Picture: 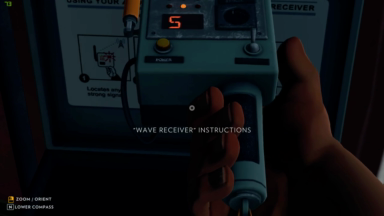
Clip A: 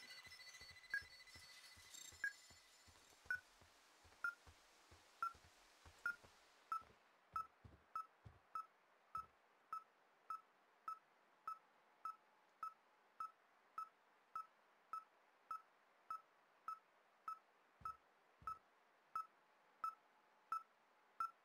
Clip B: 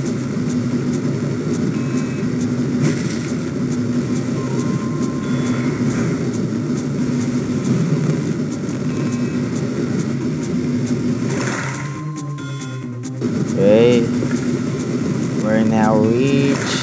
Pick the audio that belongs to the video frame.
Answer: A